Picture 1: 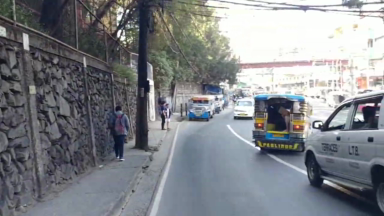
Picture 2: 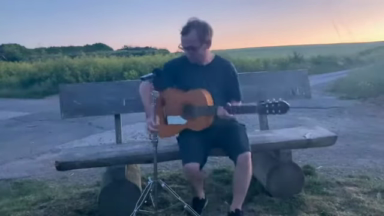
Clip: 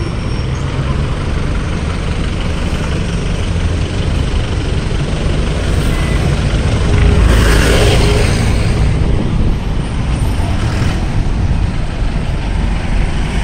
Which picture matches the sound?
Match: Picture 1